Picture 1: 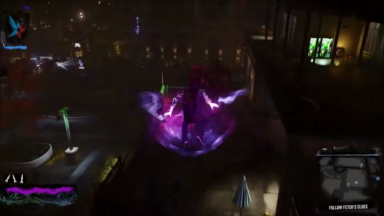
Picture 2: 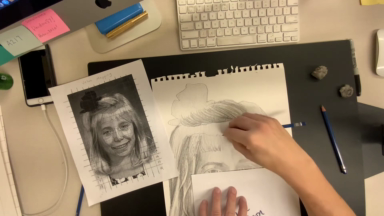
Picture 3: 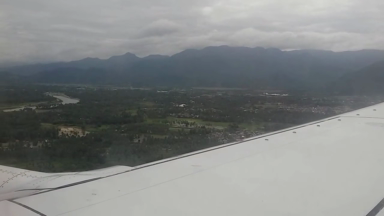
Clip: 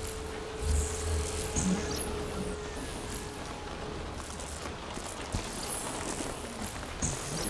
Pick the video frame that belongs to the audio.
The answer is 1